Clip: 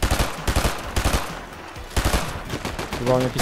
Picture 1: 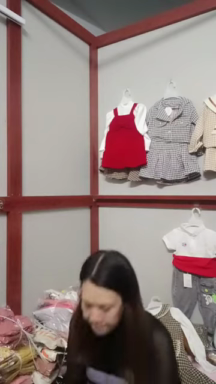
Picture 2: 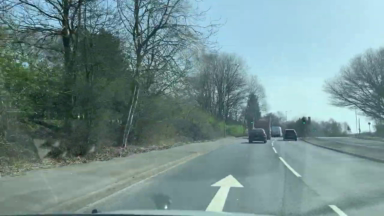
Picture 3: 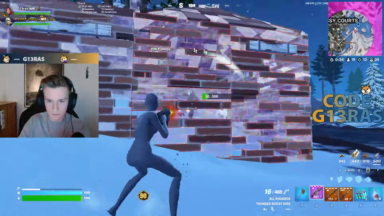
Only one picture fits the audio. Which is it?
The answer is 3